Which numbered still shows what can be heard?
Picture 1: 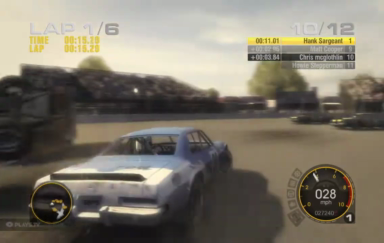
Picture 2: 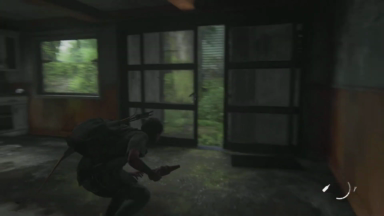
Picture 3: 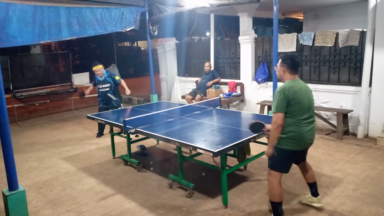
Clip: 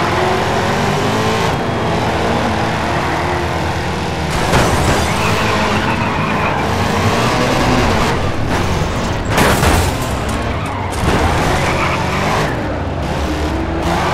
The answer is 1